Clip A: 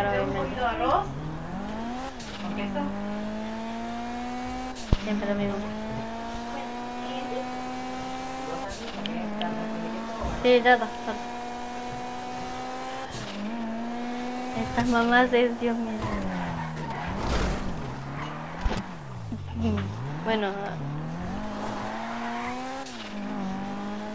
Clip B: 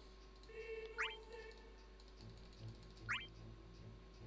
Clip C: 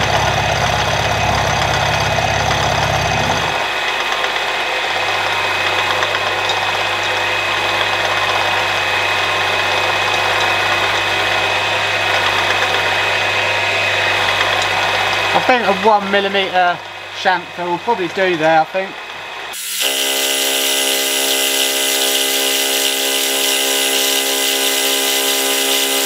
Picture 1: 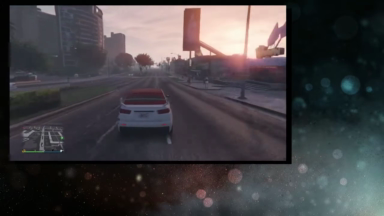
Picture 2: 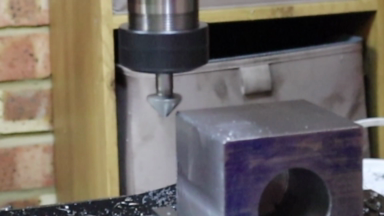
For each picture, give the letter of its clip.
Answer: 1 A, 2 C